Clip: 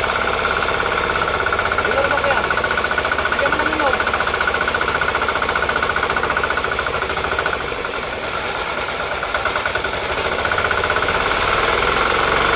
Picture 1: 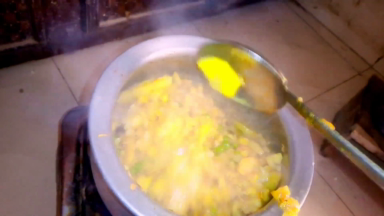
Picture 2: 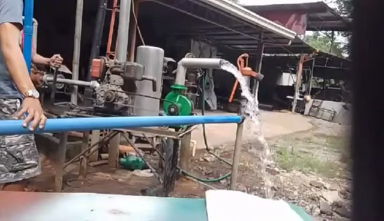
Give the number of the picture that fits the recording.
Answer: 2